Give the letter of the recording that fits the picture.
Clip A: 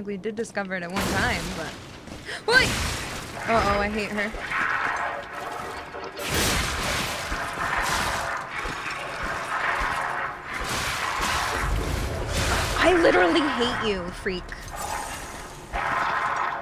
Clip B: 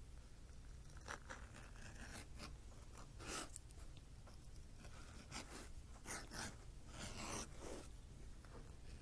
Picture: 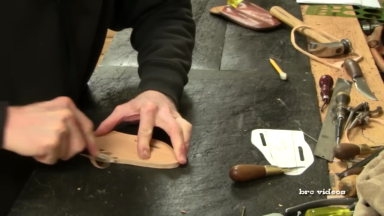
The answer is B